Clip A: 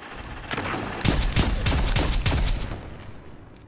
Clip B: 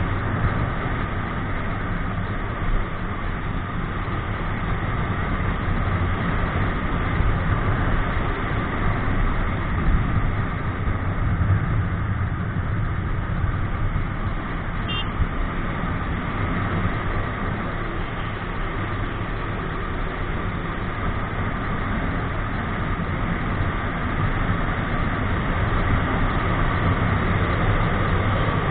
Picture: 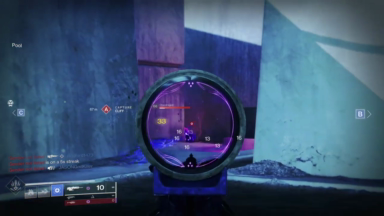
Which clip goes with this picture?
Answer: A